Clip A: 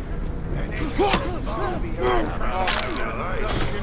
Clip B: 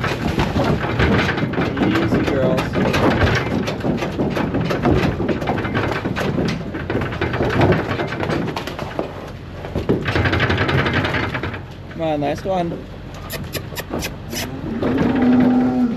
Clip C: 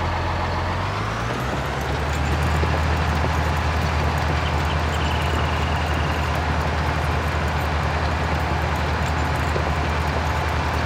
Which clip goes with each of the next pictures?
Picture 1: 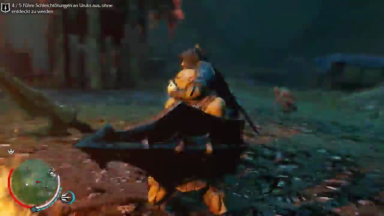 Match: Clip A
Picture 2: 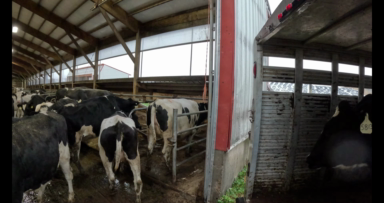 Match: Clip B